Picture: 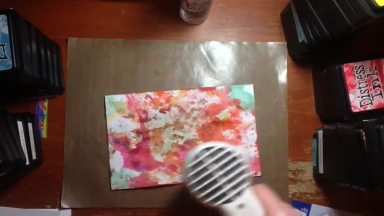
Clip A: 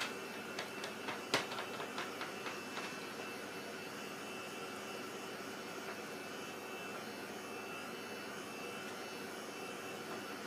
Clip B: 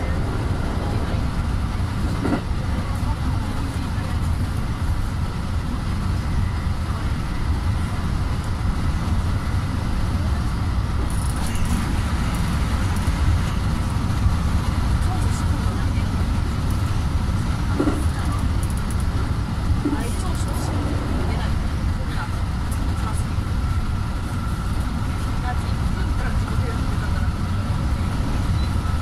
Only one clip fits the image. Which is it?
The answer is A